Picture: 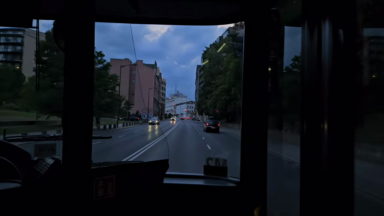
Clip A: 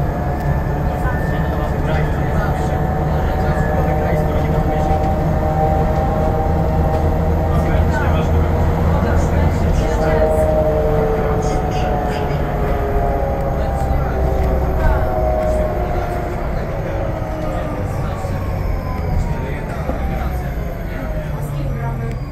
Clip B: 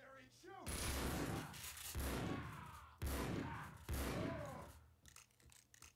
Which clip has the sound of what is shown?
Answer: A